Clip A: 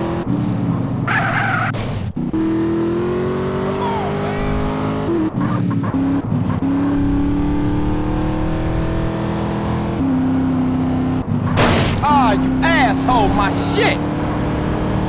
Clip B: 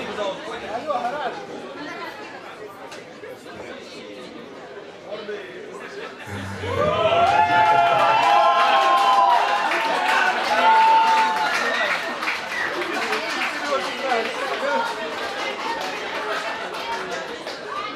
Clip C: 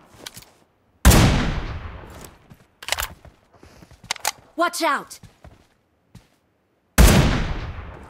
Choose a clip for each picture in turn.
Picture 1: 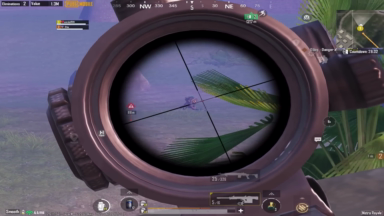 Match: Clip C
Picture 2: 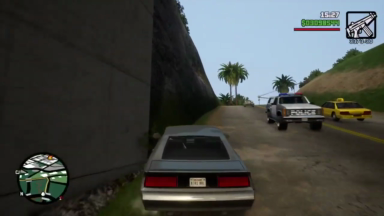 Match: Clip A